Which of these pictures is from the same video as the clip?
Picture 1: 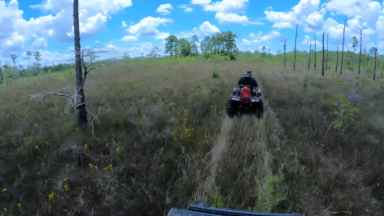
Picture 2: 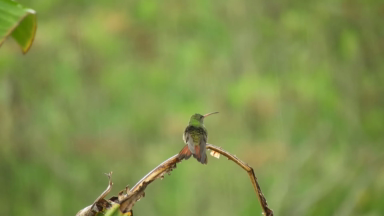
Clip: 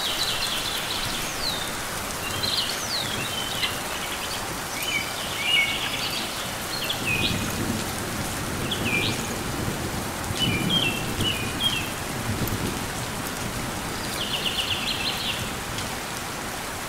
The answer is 2